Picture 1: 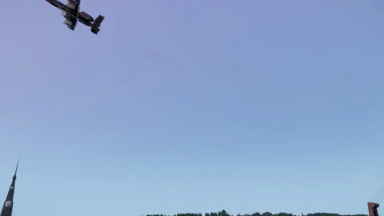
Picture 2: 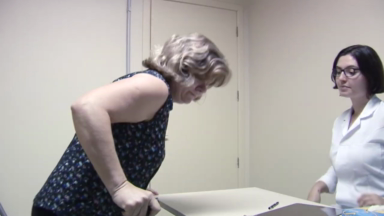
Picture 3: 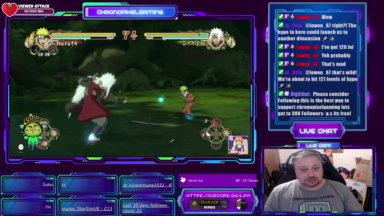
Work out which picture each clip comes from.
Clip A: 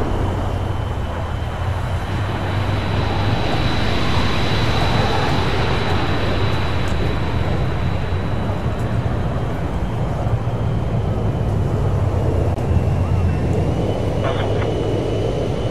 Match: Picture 1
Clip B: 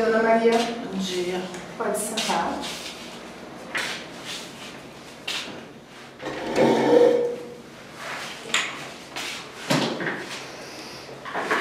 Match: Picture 2